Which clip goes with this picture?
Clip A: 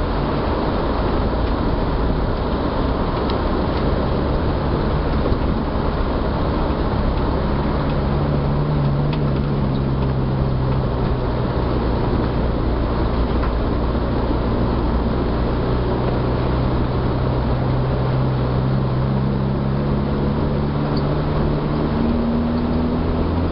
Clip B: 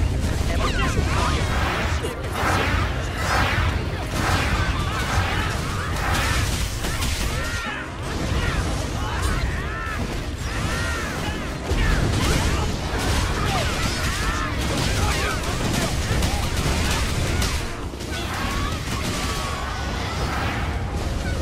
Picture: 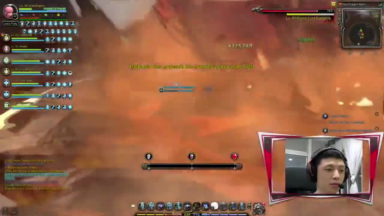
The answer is B